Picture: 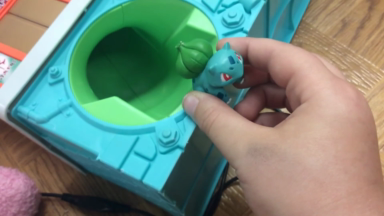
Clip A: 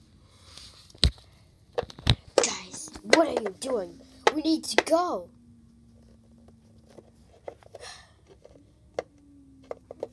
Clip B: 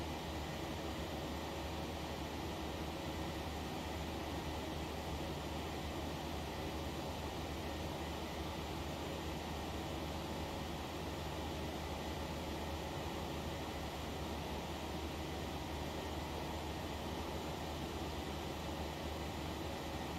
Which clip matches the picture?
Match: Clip A